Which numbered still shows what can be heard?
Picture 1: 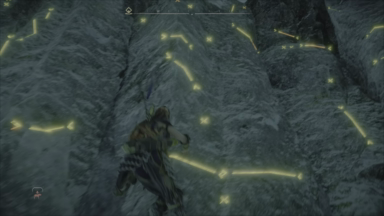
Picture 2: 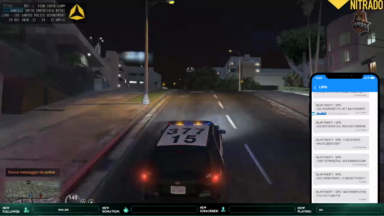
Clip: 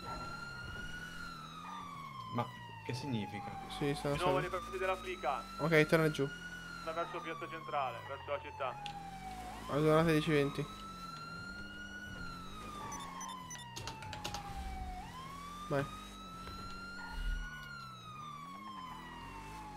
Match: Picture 2